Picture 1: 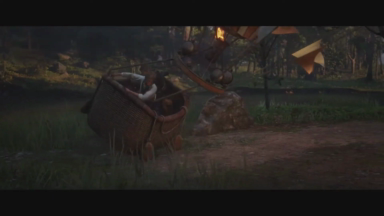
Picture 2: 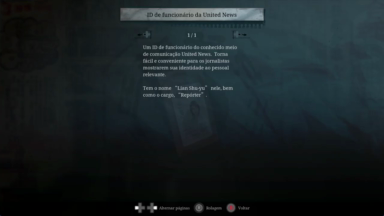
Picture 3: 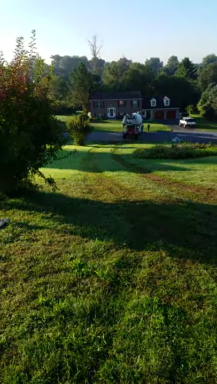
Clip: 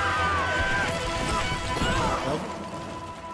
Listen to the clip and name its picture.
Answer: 1